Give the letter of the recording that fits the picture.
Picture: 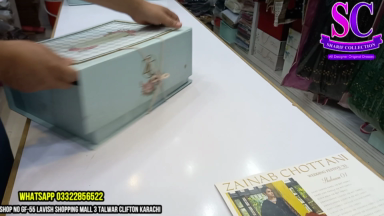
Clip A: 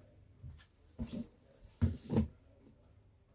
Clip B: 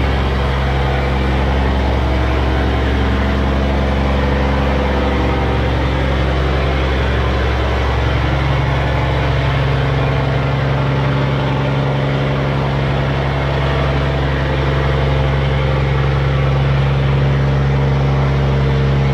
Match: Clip A